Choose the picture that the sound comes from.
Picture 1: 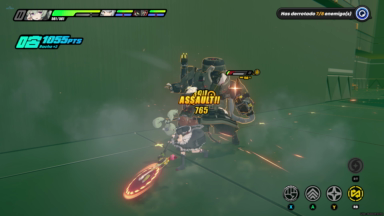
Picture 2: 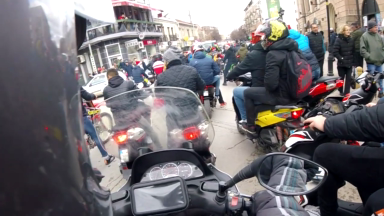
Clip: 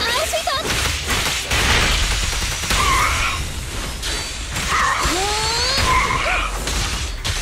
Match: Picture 1